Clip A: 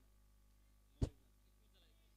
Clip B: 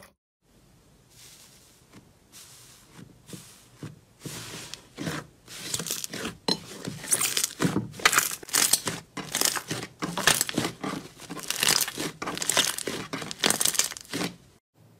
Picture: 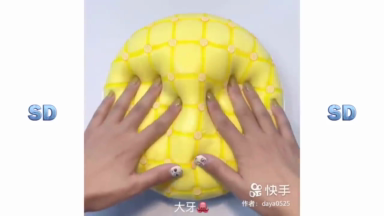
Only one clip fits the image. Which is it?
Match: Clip B